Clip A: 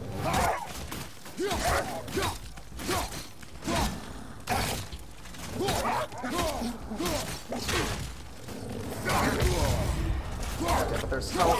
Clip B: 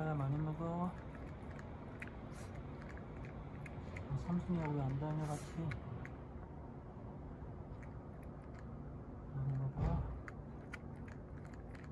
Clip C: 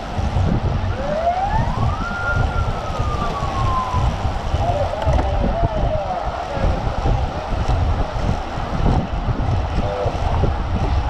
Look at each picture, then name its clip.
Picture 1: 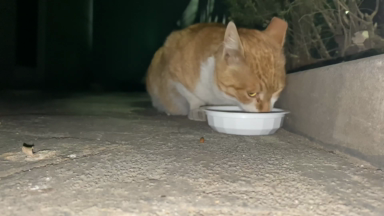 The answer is B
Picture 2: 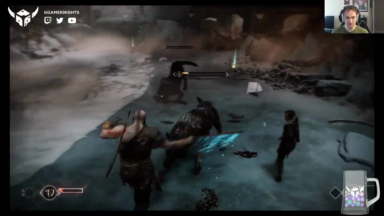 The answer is A